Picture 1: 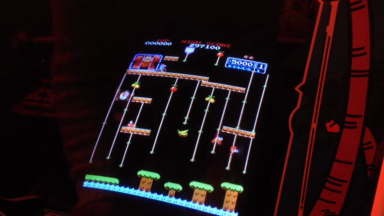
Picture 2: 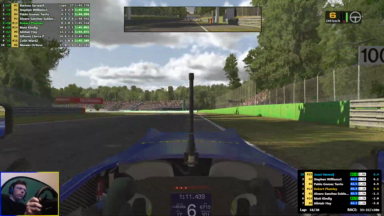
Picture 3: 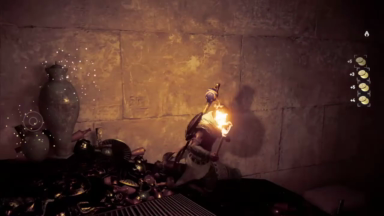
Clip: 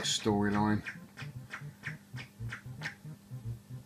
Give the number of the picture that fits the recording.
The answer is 1